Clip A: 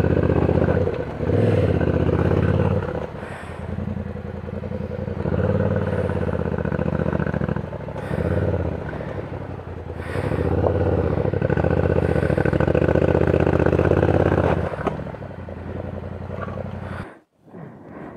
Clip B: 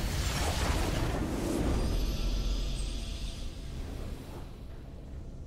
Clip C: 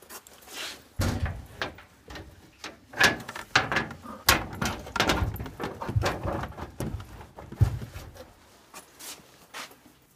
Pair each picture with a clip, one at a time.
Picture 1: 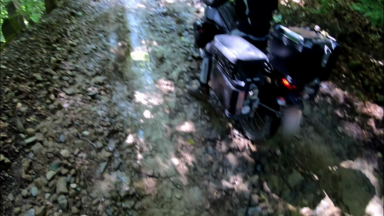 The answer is A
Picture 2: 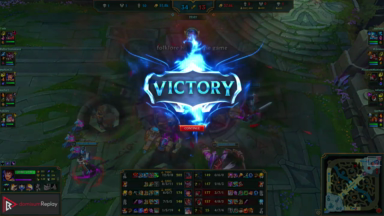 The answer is B